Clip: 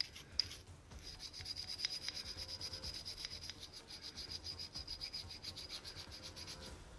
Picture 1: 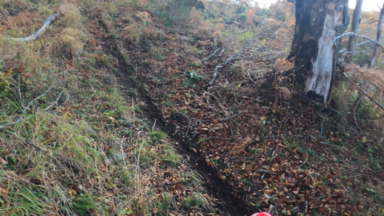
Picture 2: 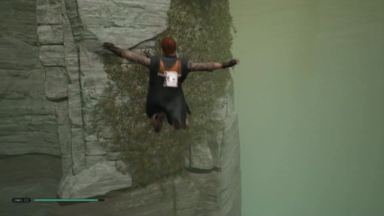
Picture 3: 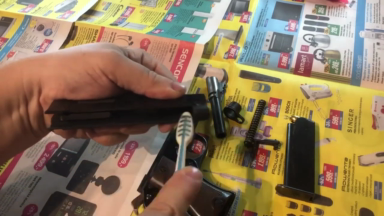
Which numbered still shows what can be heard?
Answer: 3